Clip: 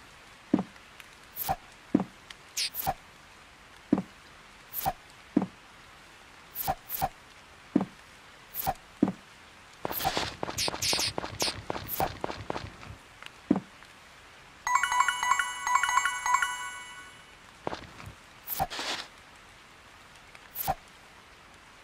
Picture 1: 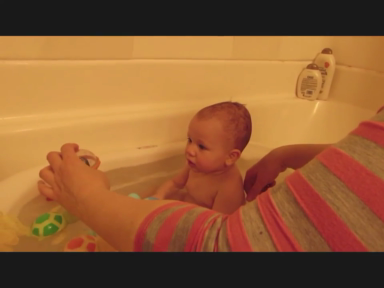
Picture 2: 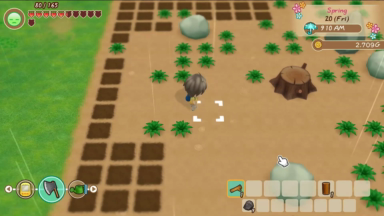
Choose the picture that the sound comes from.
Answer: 2